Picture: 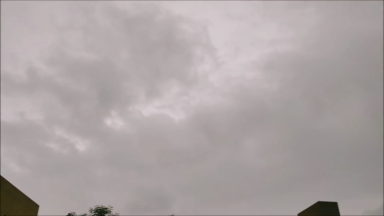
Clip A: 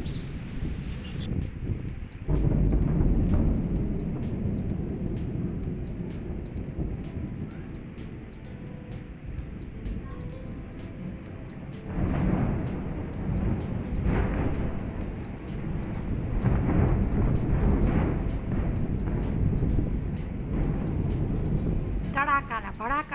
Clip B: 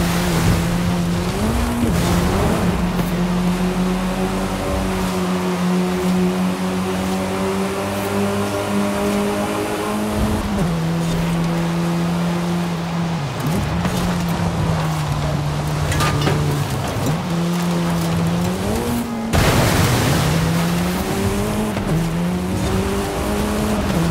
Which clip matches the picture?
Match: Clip A